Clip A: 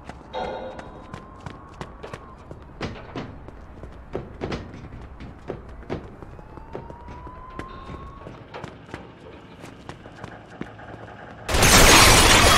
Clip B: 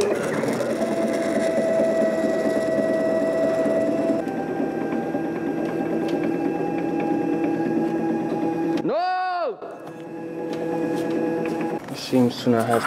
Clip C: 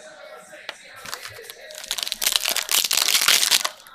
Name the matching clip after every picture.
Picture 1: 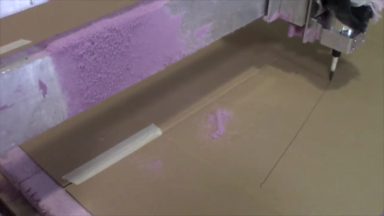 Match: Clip B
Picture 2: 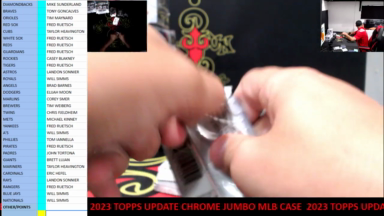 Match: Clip C